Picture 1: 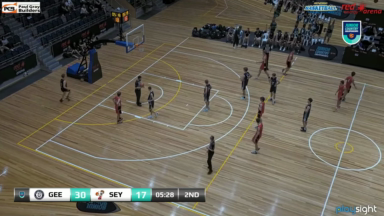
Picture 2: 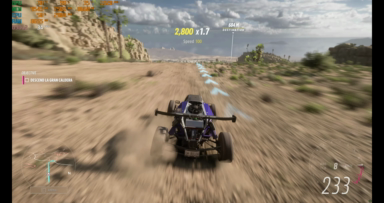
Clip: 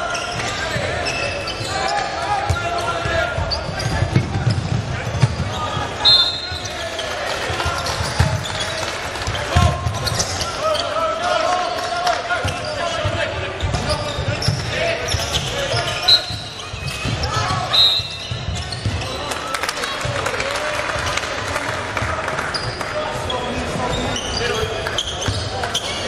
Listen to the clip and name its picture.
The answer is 1